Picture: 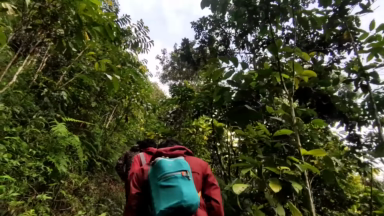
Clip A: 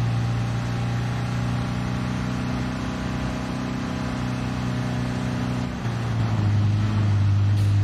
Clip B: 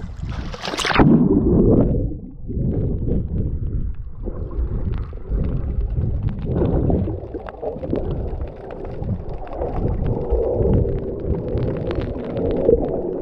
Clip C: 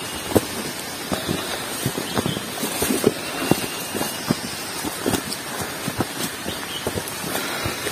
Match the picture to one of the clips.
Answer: C